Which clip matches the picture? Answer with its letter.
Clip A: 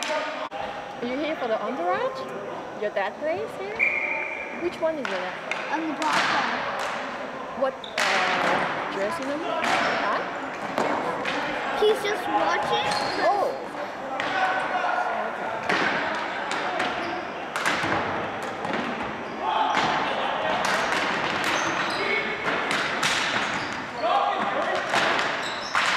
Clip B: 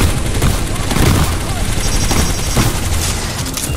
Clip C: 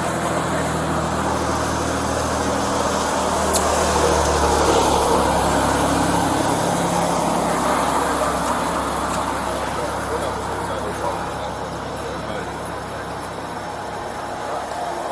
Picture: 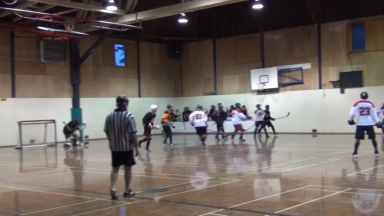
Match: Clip A